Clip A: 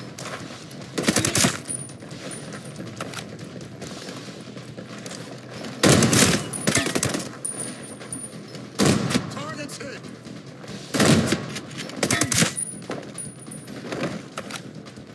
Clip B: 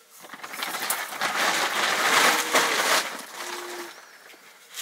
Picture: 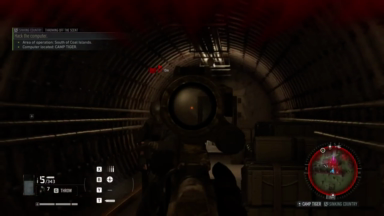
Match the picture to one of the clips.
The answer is A